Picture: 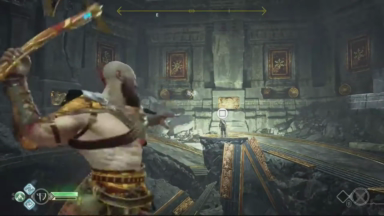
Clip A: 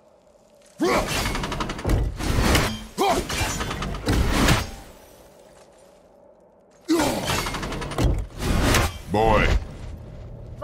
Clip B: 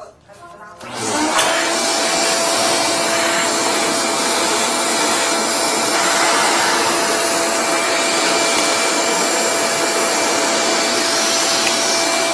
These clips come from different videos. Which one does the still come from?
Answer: A